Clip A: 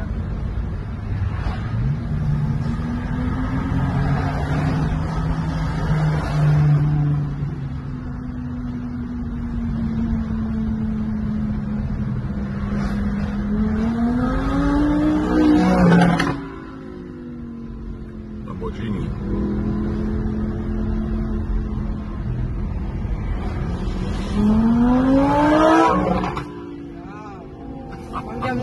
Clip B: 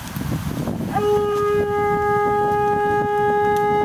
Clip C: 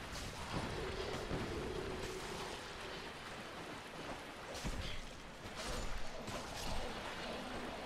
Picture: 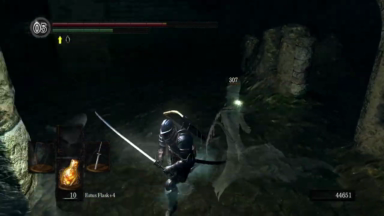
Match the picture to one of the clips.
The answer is C